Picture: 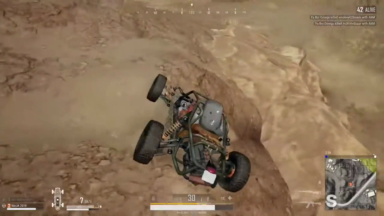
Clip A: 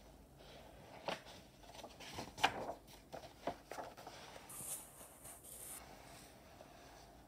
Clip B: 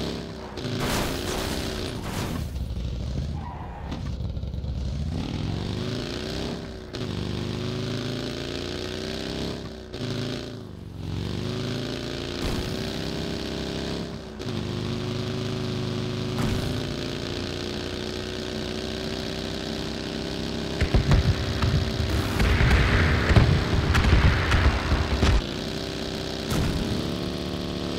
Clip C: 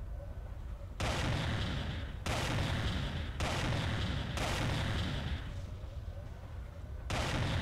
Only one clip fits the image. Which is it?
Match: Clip B